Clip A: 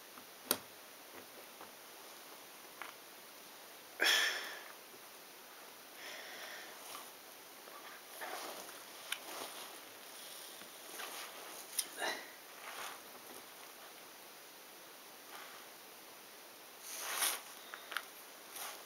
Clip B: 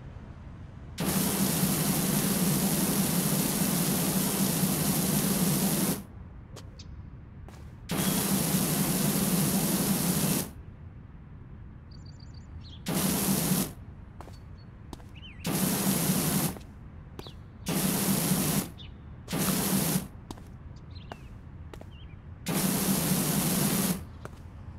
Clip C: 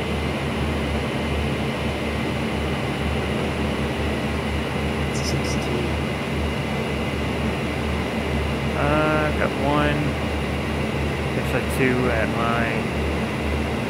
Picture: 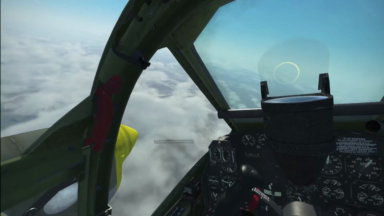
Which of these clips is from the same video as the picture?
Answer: C